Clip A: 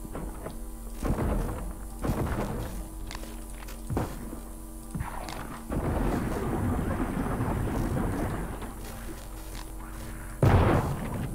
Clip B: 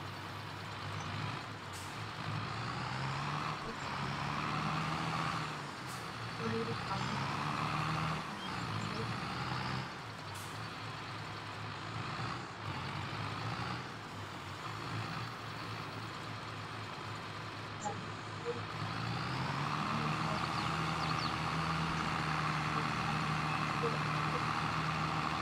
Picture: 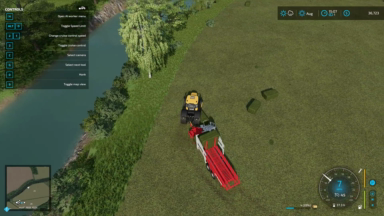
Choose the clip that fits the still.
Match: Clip B